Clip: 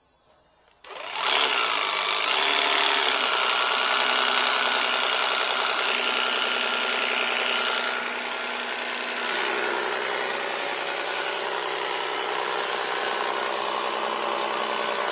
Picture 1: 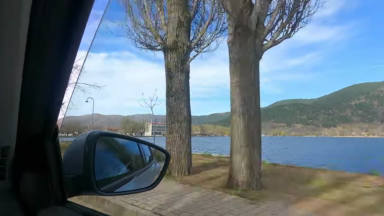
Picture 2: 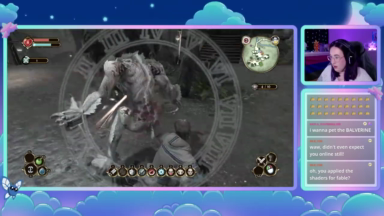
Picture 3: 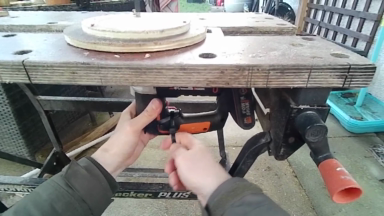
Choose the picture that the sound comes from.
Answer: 3